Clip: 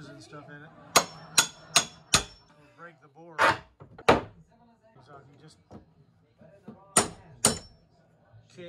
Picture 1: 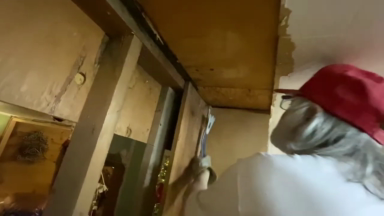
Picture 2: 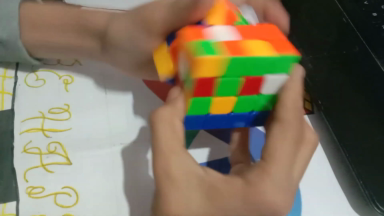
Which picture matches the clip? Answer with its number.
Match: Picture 1